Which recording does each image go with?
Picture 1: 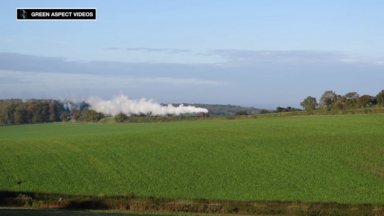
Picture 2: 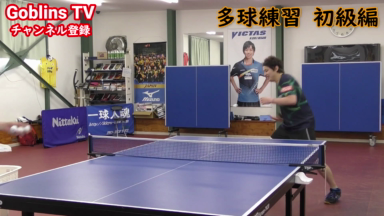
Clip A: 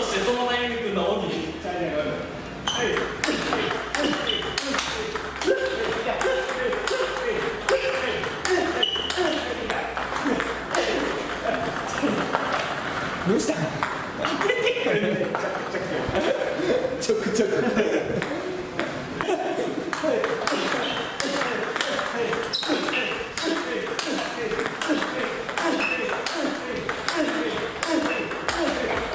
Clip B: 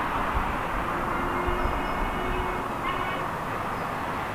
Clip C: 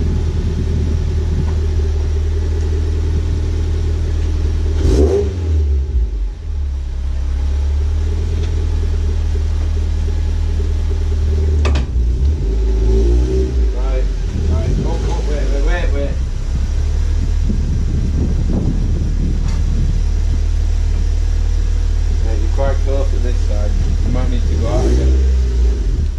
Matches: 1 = B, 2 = A